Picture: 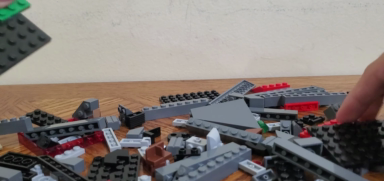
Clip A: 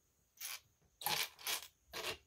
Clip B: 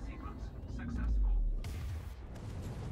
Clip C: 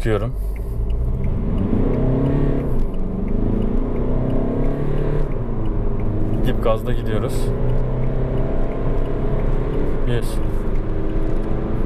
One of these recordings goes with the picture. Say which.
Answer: A